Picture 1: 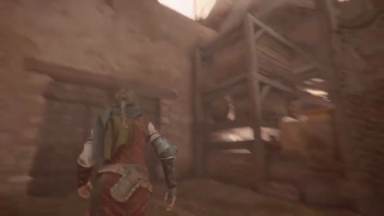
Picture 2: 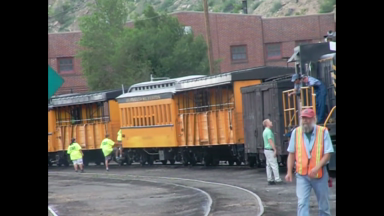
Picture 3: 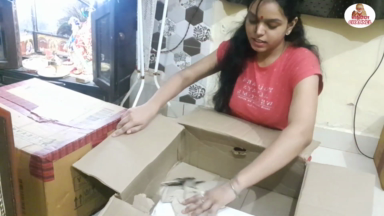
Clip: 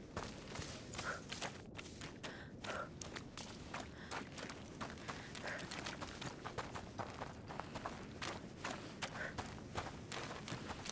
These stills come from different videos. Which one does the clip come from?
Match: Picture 1